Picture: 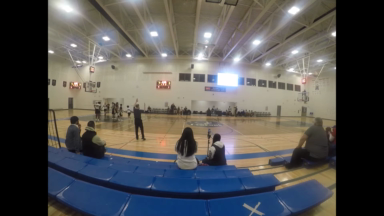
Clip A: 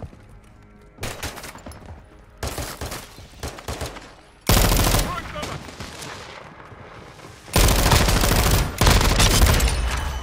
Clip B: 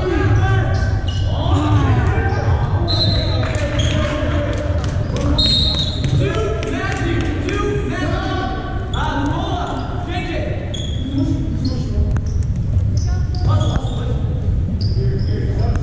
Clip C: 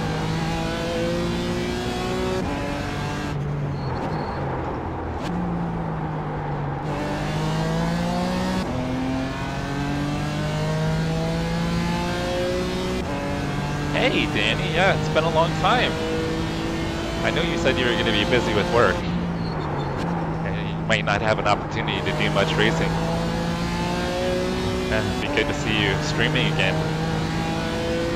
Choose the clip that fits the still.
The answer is B